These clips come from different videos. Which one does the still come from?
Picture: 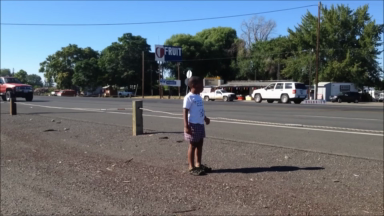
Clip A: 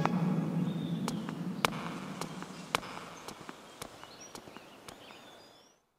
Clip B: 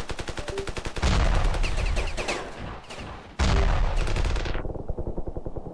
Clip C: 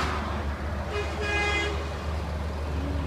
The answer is C